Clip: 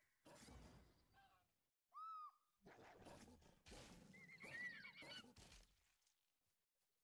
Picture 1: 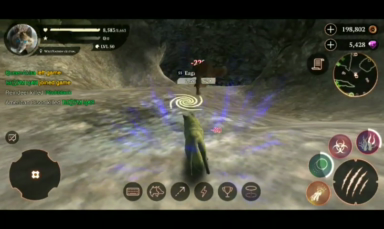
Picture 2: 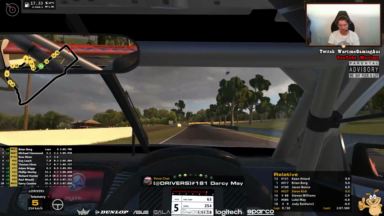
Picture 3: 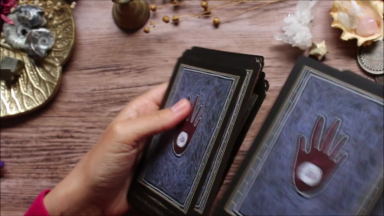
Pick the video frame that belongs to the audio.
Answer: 1